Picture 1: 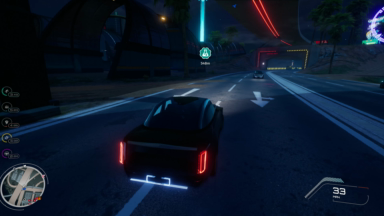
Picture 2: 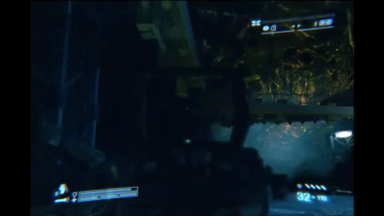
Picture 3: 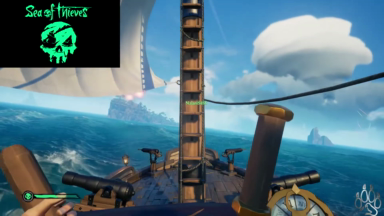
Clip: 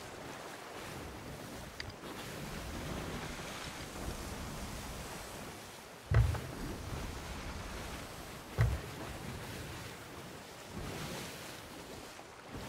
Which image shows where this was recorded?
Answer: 3